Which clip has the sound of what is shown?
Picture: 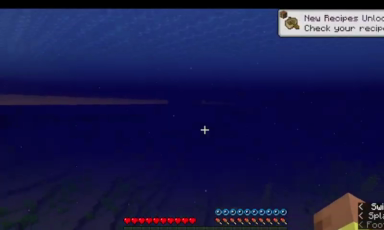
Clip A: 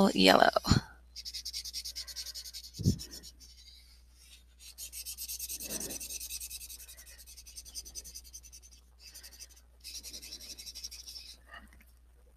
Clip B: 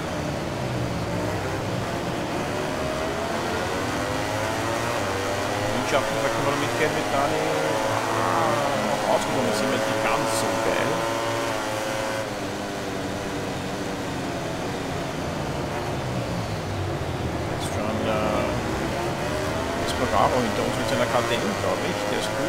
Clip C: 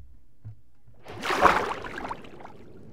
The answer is C